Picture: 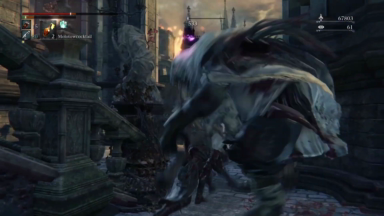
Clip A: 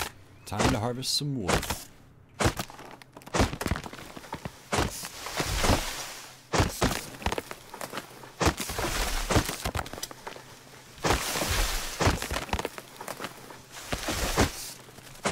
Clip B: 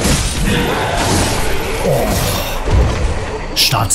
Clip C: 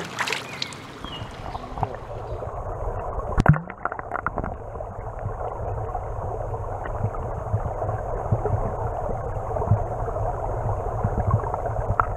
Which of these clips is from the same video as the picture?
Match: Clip B